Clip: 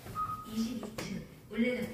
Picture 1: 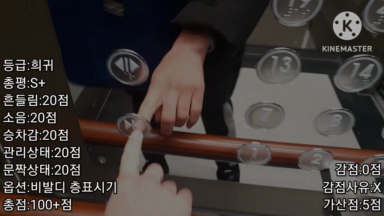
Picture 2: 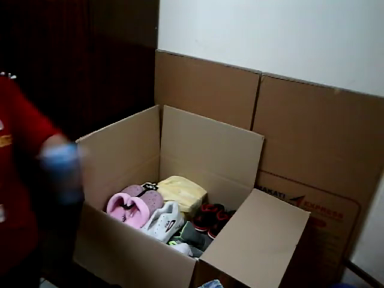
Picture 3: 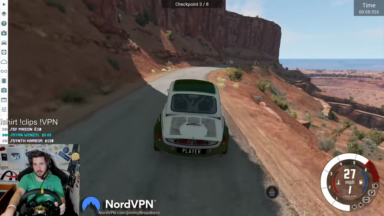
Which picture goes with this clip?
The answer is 1